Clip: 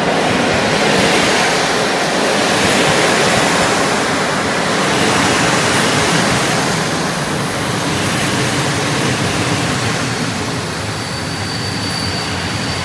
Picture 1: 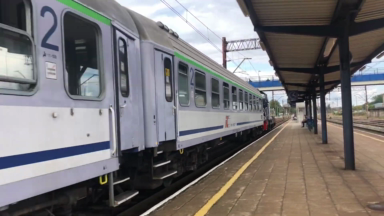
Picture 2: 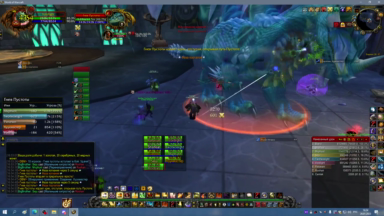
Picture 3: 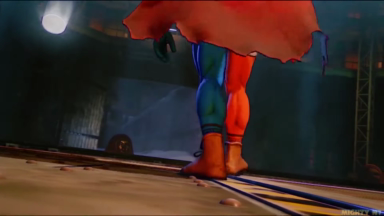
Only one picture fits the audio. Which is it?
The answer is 1